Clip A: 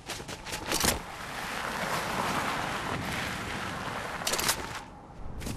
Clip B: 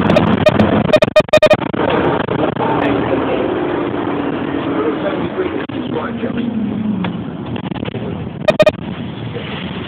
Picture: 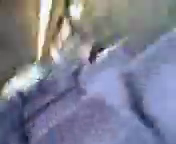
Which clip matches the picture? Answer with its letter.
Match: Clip B